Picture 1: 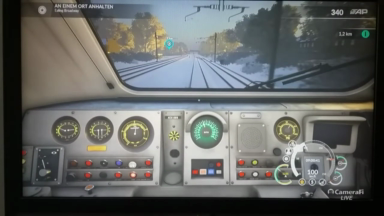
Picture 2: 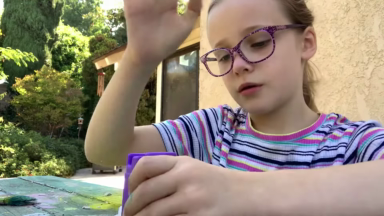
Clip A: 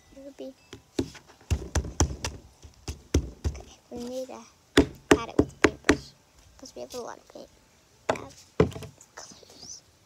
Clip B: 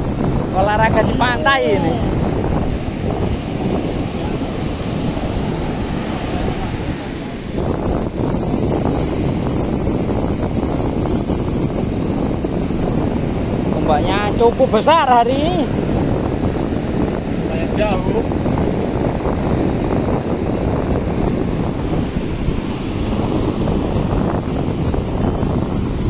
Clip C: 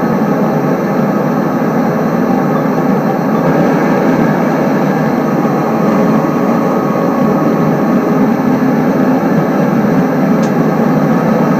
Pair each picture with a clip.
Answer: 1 C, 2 A